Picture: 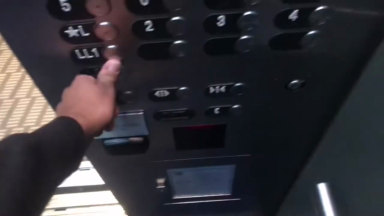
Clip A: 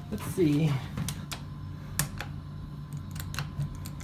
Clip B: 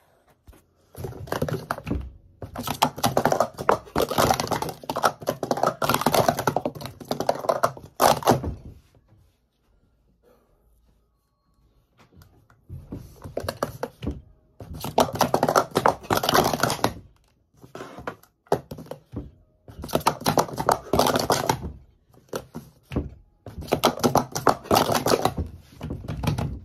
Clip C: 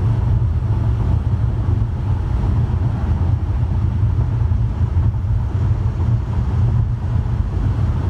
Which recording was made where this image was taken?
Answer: A